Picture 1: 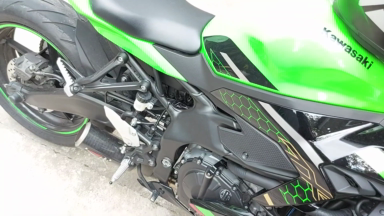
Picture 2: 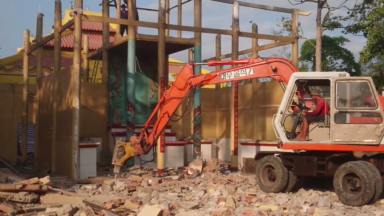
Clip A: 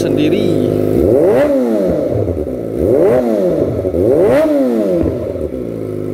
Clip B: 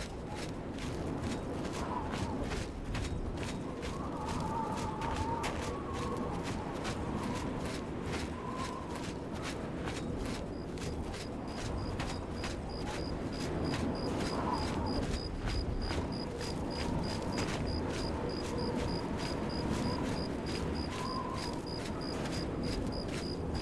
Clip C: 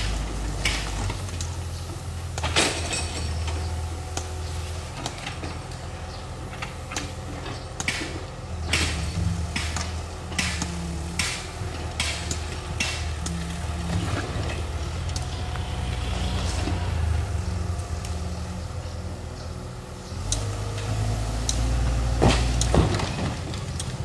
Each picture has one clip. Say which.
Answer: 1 A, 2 C